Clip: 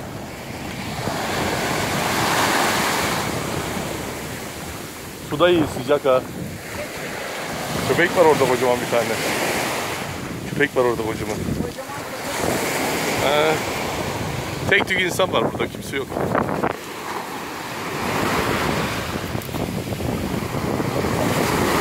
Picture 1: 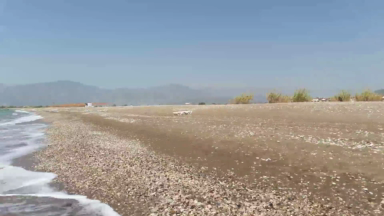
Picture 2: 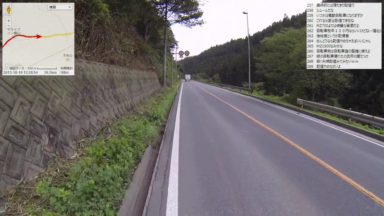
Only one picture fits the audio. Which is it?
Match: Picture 1